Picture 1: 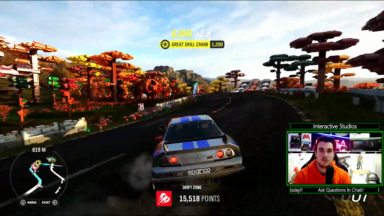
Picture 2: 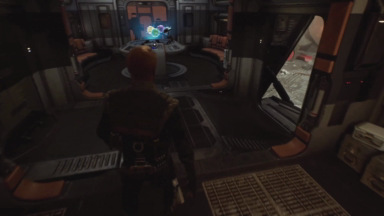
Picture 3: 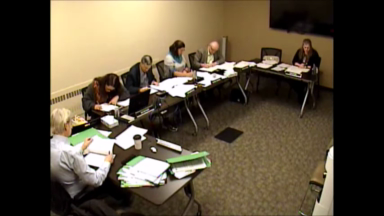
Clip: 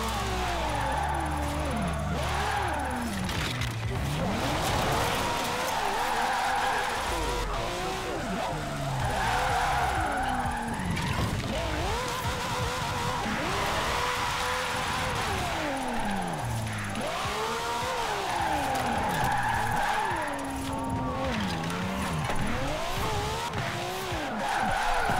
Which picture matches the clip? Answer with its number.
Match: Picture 1